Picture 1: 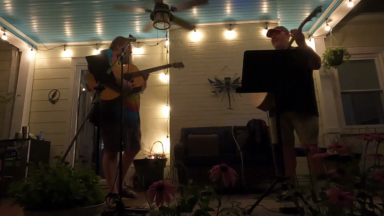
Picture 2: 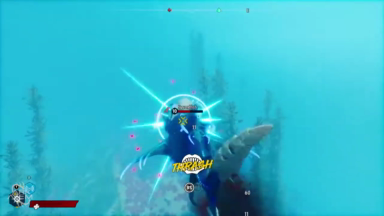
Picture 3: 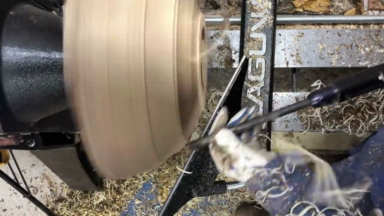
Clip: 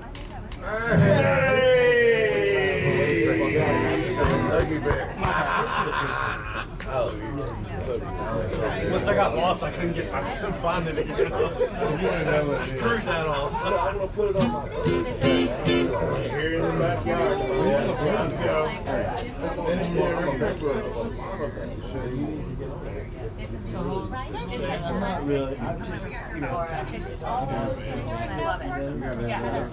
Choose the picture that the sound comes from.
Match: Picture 1